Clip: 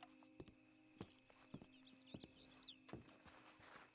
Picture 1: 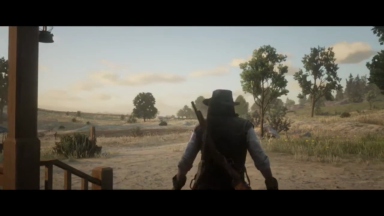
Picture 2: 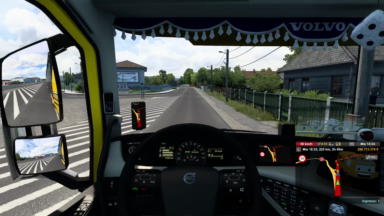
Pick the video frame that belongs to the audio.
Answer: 1